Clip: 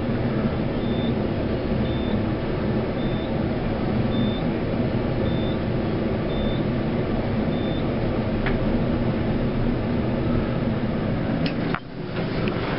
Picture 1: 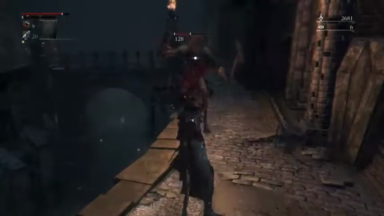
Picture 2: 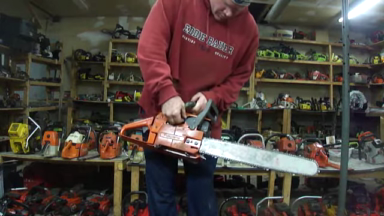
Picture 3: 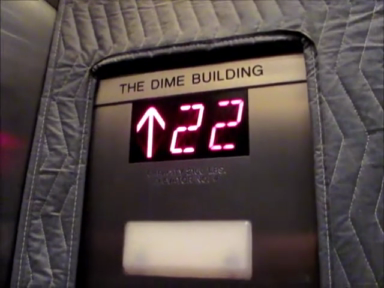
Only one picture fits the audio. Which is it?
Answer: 3